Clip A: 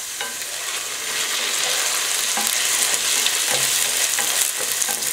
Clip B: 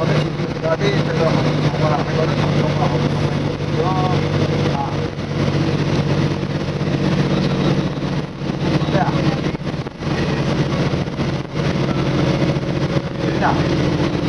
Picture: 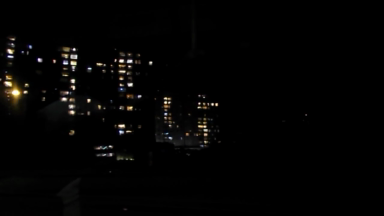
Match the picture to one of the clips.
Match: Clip B